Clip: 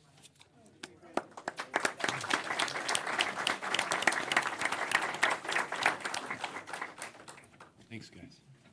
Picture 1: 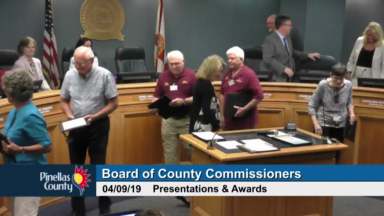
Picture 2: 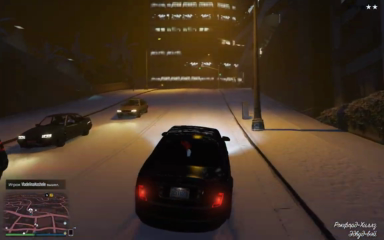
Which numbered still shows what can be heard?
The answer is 1